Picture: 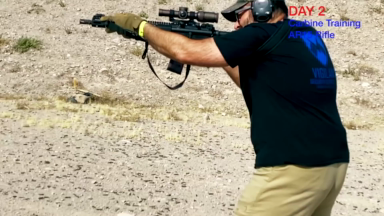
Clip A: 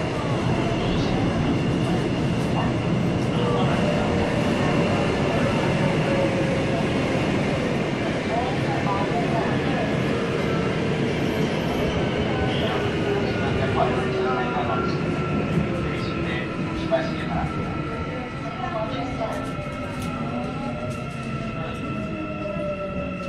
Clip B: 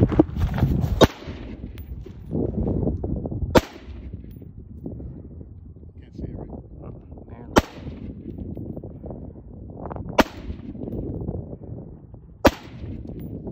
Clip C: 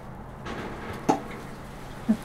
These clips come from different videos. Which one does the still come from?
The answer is B